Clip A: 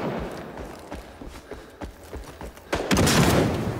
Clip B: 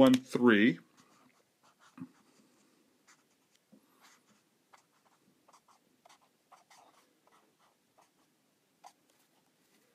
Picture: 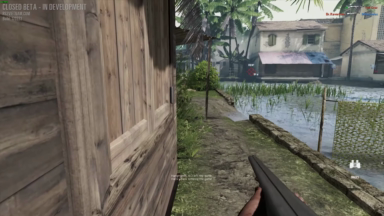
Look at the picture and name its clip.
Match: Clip A